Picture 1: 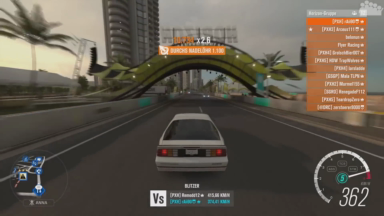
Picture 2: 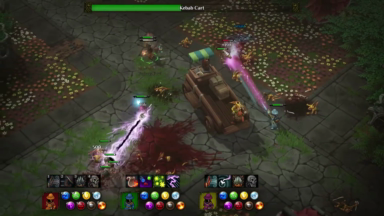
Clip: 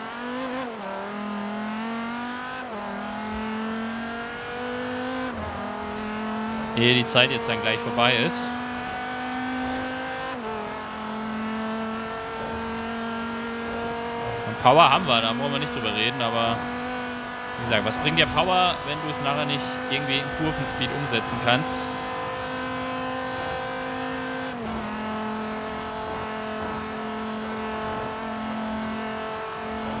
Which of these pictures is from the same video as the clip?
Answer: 1